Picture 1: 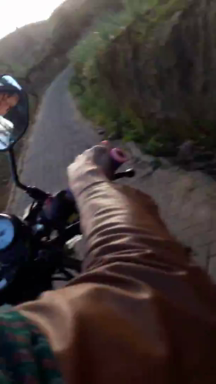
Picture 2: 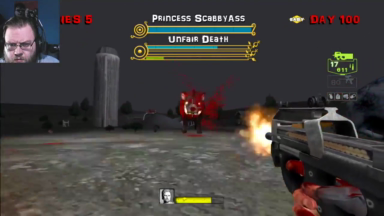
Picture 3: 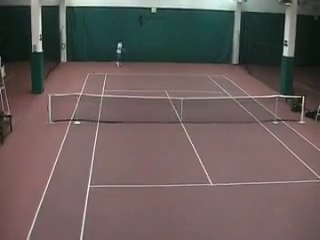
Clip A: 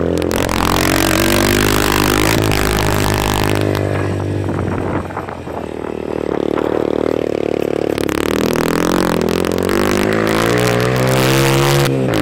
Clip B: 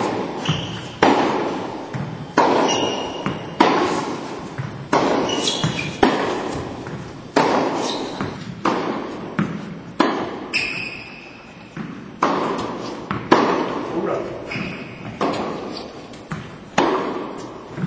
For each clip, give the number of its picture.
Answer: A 1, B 3